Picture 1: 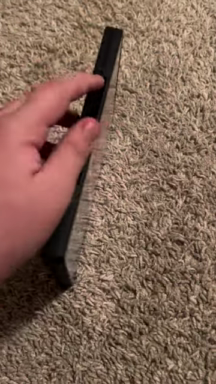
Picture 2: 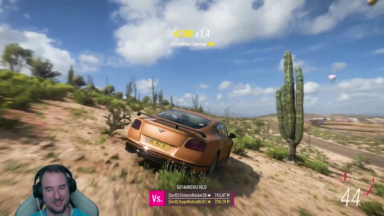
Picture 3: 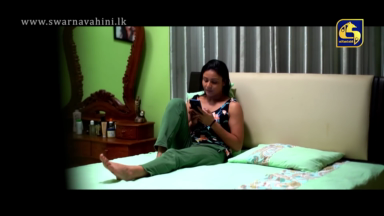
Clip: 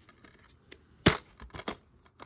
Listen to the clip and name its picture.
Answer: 1